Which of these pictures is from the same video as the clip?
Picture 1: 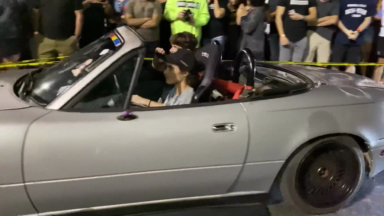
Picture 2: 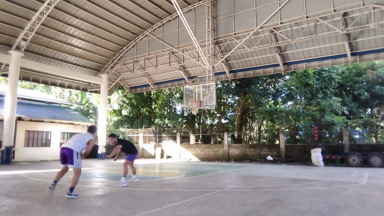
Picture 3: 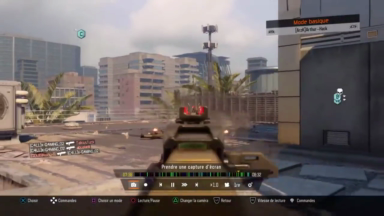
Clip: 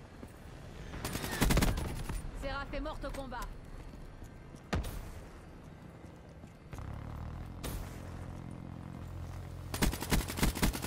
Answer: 3